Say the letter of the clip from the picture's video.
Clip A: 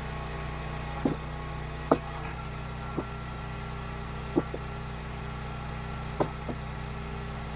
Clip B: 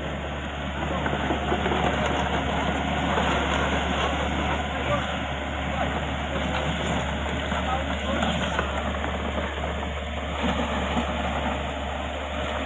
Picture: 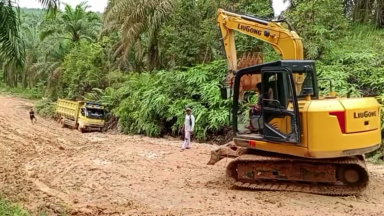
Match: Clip B